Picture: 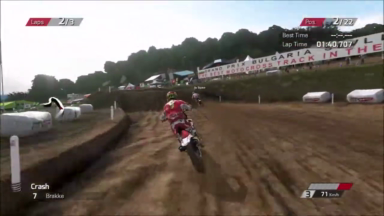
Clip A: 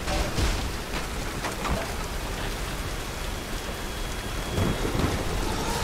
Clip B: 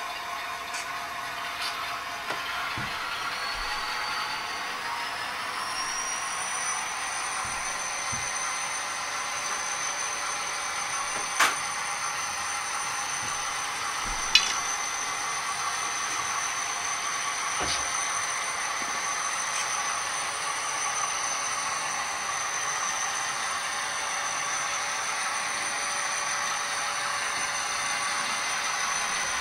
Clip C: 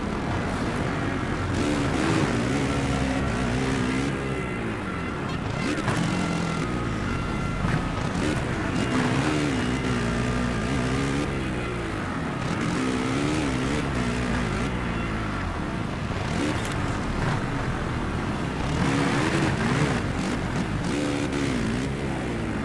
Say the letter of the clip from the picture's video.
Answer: C